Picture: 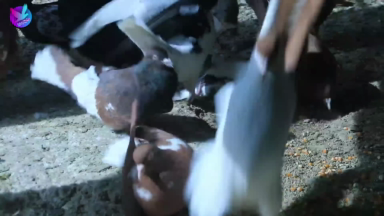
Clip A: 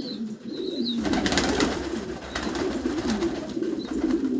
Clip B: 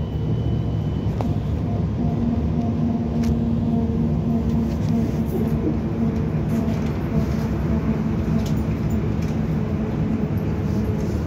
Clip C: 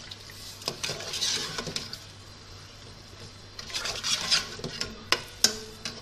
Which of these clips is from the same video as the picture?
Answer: A